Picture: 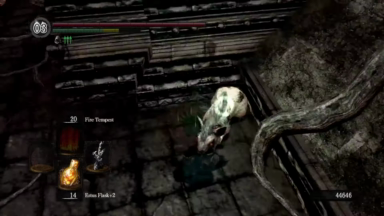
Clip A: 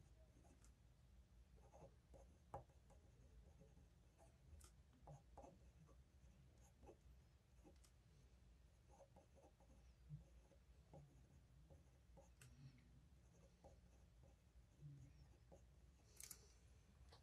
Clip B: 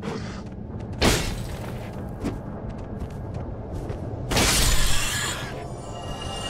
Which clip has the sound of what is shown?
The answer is B